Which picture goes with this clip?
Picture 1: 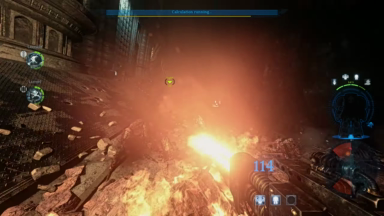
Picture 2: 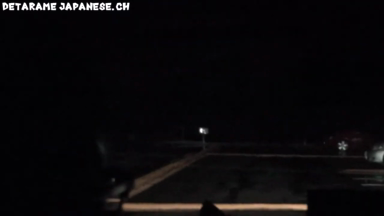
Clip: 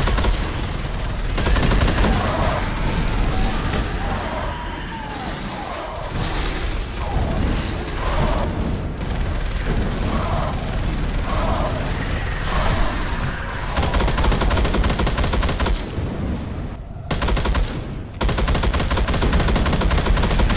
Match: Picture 1